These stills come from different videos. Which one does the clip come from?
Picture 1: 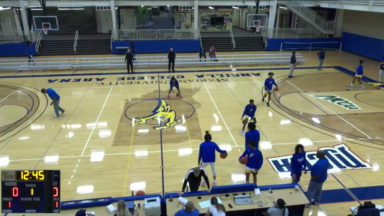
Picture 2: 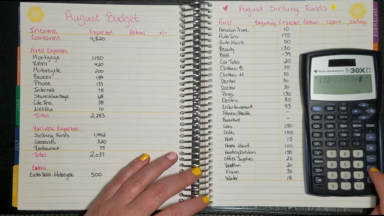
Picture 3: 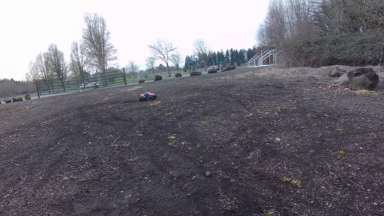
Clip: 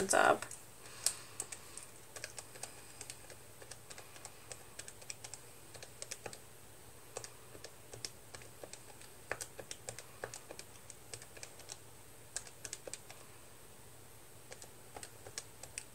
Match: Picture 2